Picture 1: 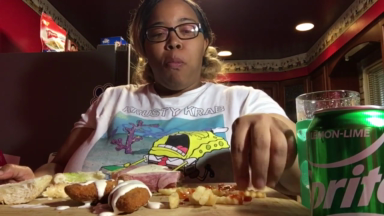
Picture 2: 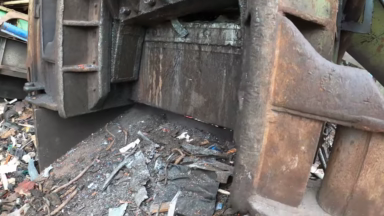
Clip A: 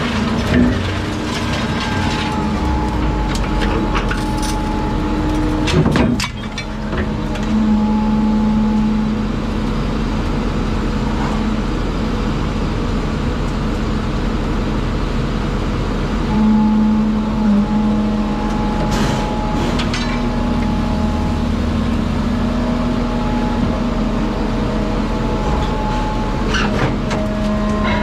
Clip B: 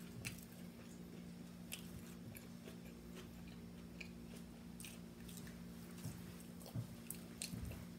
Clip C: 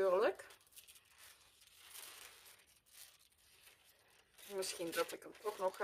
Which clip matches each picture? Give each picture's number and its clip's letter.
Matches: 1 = B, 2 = A